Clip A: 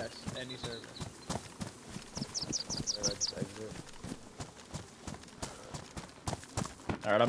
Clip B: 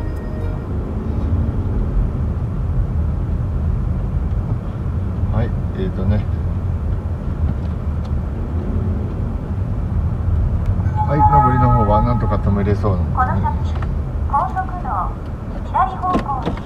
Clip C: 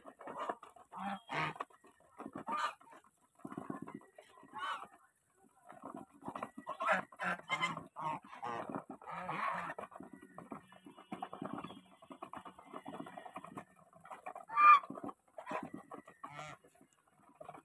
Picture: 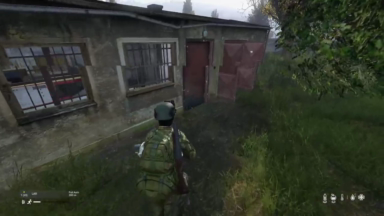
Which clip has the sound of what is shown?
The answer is A